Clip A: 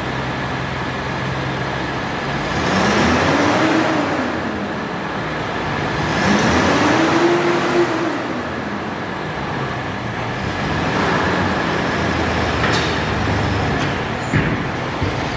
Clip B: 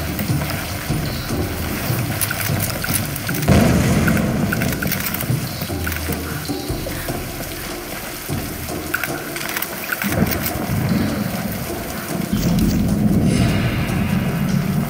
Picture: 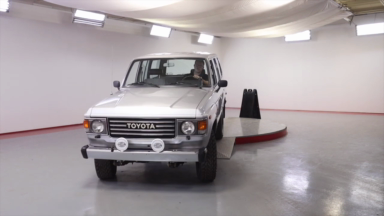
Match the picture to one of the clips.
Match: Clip A